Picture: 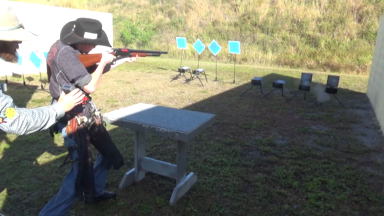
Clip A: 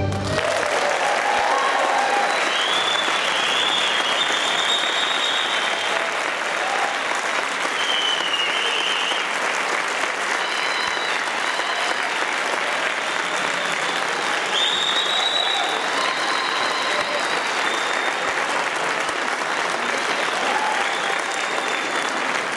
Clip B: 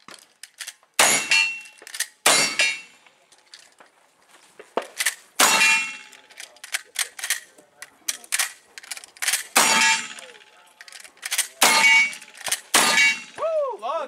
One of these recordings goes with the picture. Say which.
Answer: B